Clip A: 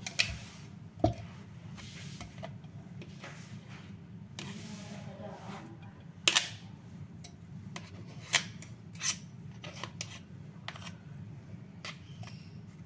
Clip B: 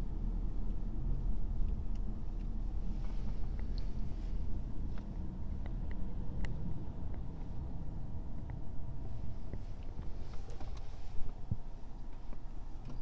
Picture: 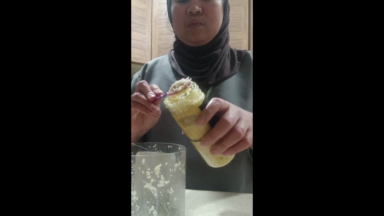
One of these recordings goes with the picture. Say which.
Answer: A